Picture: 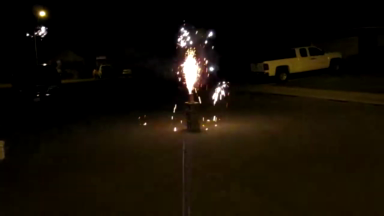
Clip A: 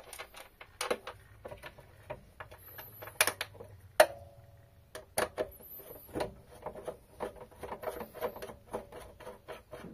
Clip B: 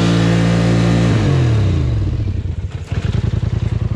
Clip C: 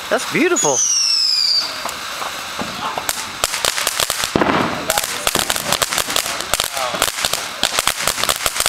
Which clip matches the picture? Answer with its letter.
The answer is C